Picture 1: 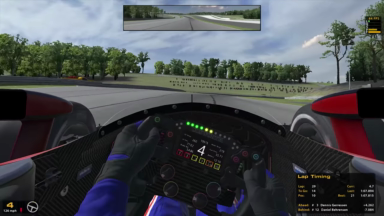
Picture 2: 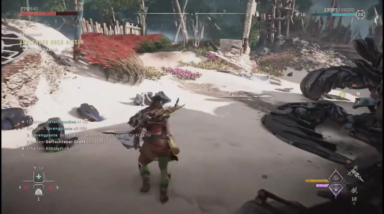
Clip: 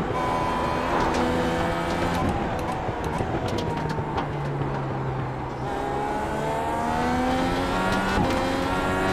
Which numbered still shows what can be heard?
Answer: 1